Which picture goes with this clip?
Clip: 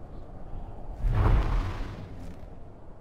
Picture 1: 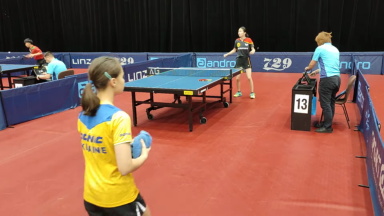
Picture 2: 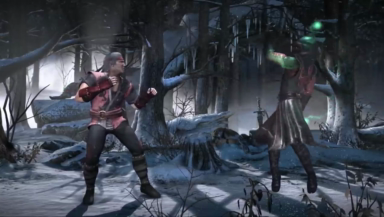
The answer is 2